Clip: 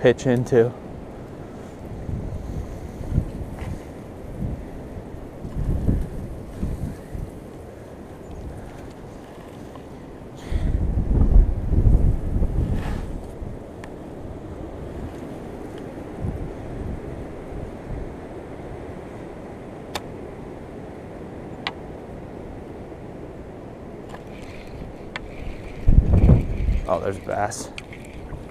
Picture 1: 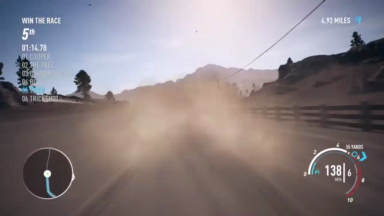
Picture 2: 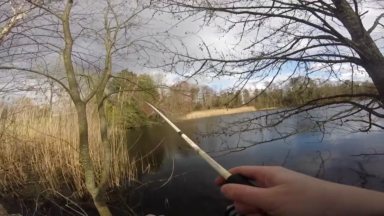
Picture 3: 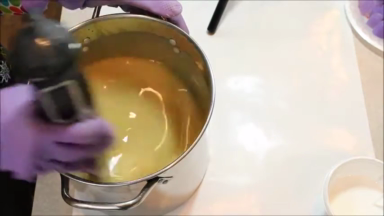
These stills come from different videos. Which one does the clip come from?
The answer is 2